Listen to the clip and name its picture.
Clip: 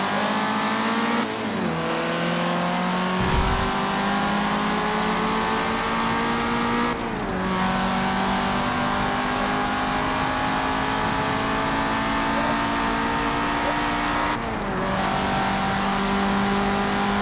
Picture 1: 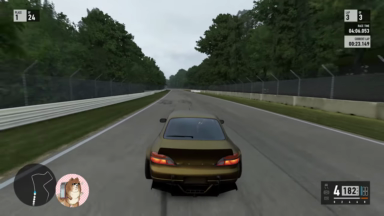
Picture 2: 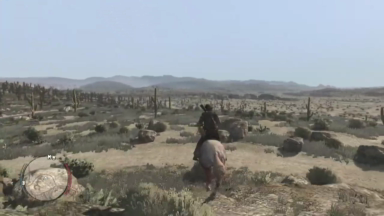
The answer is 1